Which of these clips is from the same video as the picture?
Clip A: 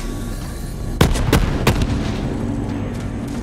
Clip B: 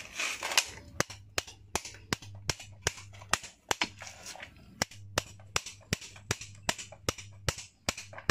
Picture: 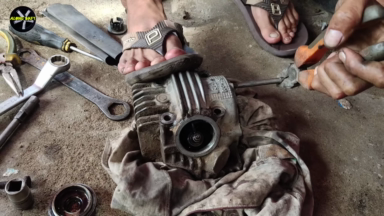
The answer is B